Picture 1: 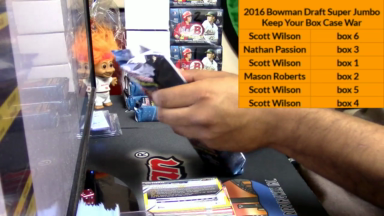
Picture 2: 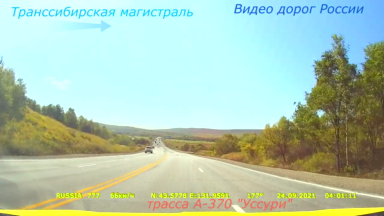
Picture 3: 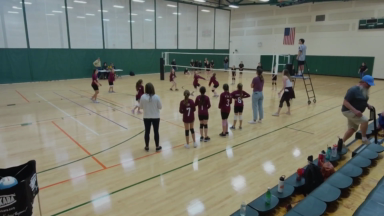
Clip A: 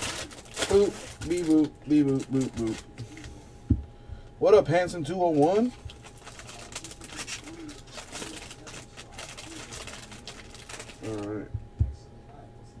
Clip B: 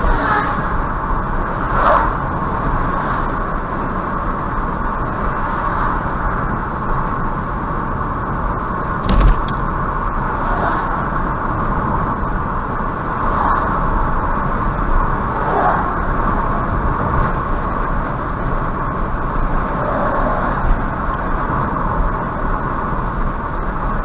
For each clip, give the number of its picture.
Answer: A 1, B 2